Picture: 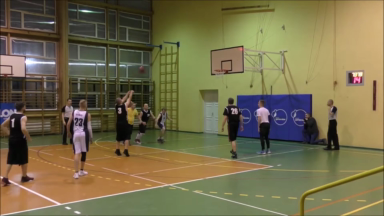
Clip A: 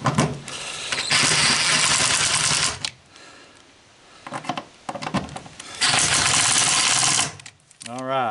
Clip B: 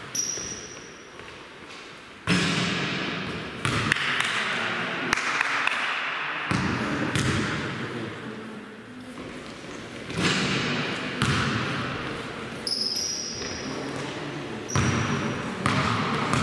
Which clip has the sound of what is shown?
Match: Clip B